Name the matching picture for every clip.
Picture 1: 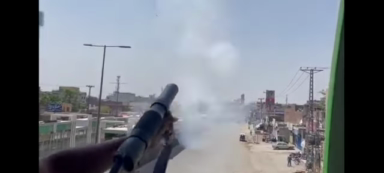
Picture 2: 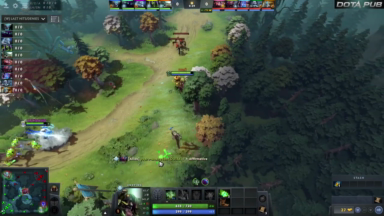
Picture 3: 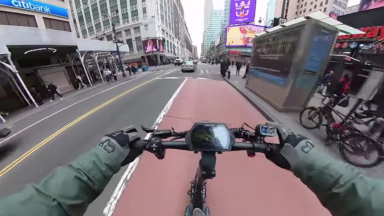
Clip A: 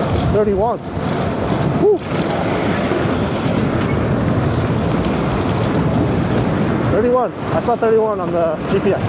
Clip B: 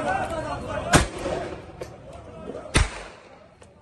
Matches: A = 3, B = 1